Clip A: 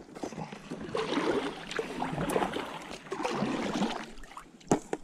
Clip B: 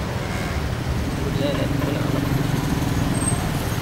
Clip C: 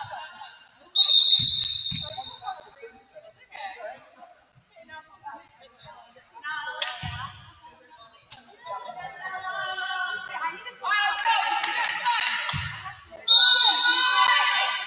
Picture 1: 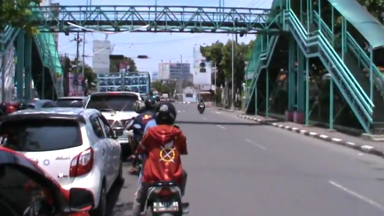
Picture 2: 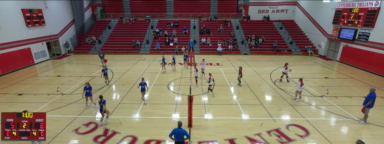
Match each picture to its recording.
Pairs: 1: B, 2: C